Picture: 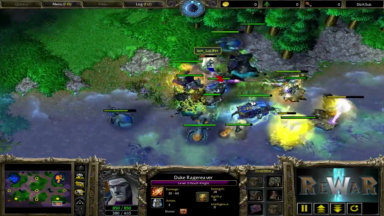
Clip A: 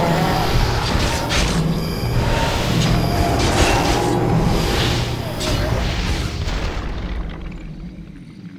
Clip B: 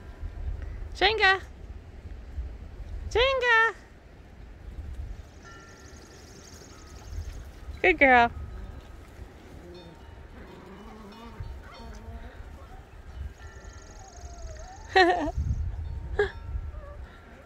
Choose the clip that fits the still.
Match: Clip A